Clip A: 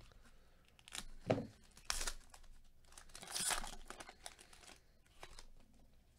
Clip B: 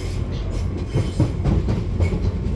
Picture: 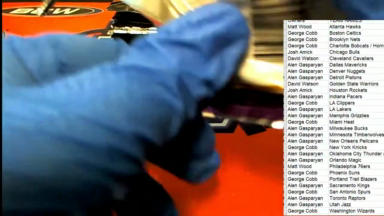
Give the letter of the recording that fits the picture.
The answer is A